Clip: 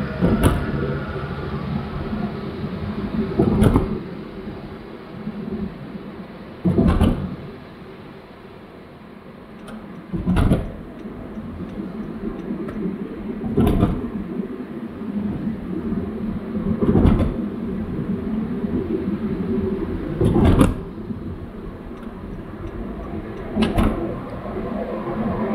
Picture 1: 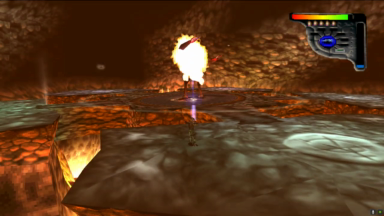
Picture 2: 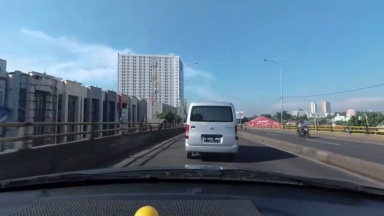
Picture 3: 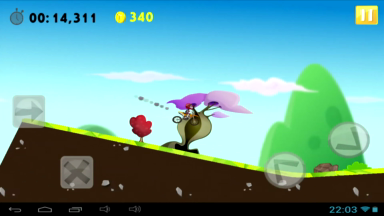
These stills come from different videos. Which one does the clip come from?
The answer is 2